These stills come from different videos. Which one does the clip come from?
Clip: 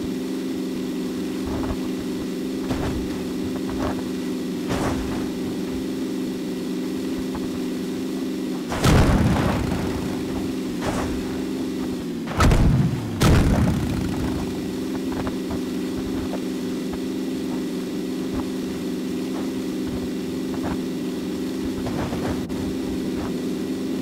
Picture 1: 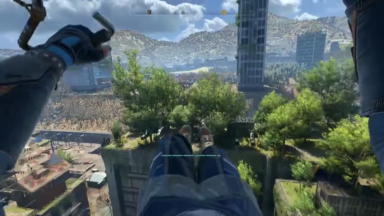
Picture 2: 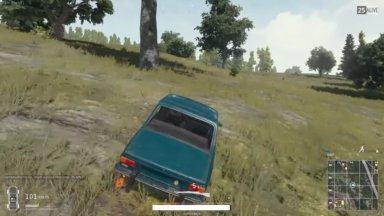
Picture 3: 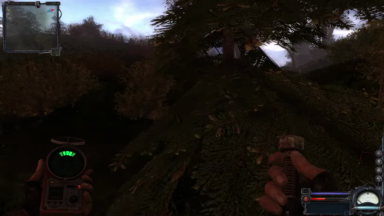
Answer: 2